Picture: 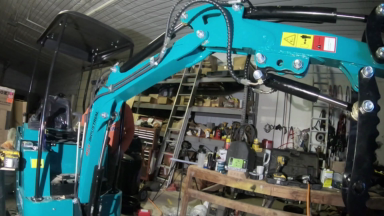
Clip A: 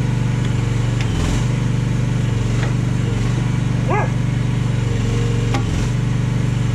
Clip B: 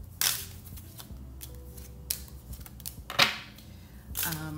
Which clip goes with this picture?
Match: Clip A